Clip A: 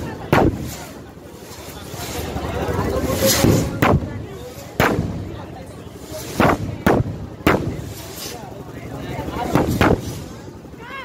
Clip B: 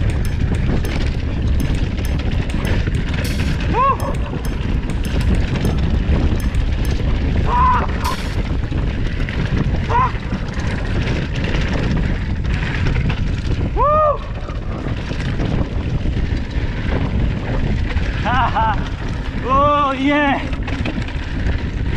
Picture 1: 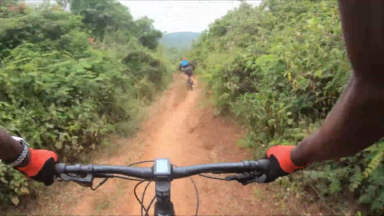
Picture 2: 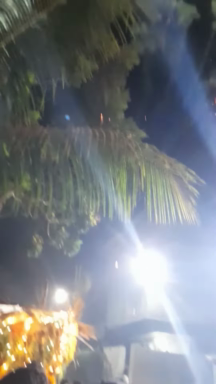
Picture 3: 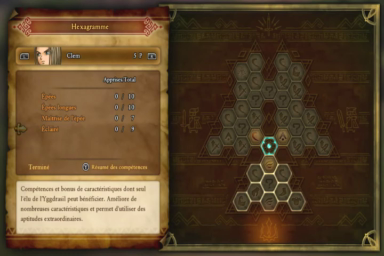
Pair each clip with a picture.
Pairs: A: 2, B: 1